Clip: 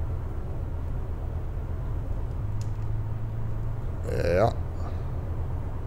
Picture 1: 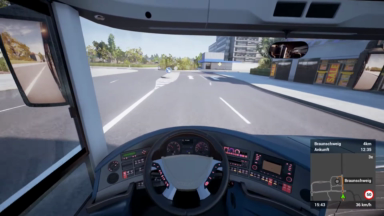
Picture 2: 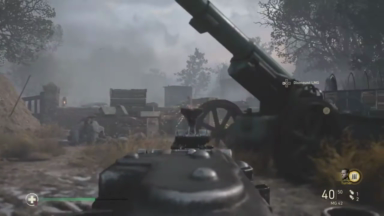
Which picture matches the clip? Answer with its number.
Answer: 1